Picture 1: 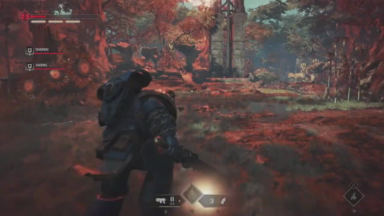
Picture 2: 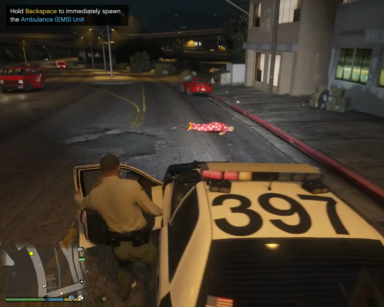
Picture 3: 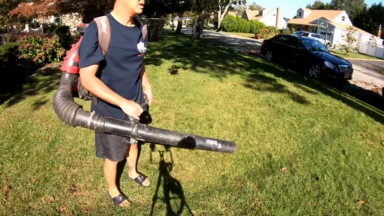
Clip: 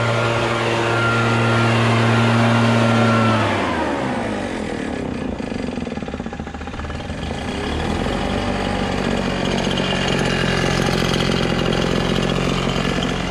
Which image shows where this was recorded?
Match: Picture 3